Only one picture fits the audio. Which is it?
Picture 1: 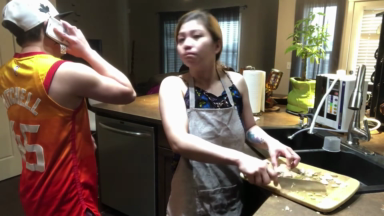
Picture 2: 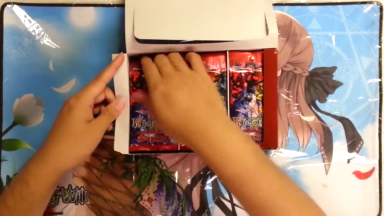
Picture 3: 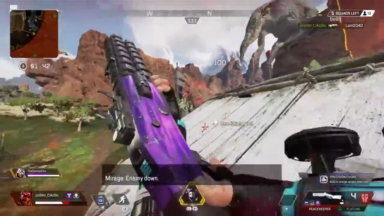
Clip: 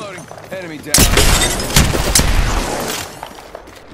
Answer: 3